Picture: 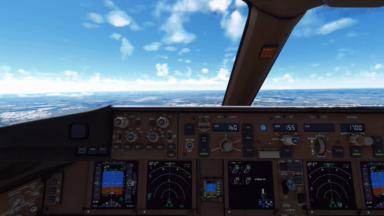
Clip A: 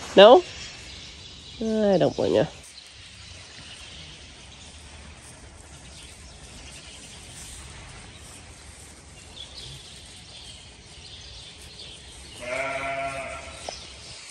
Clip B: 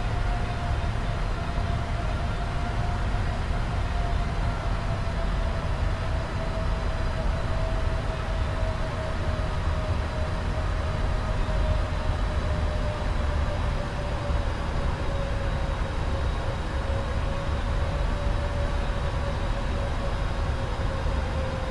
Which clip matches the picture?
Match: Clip B